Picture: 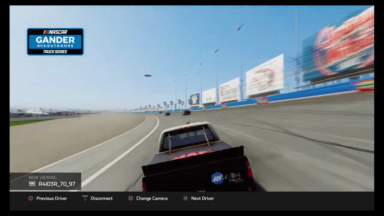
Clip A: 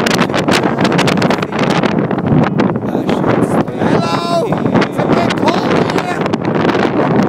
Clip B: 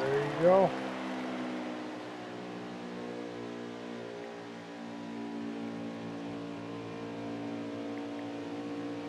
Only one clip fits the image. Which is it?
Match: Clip B